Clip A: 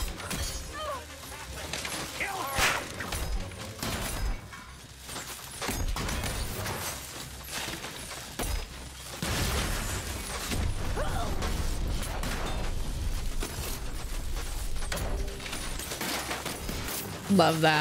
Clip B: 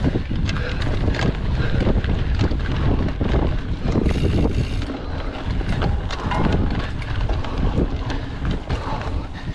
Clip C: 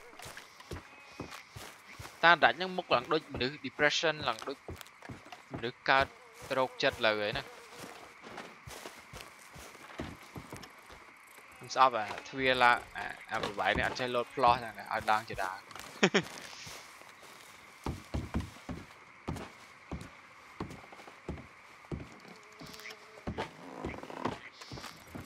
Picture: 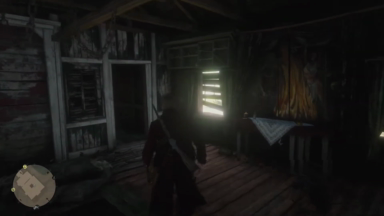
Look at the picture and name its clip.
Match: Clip C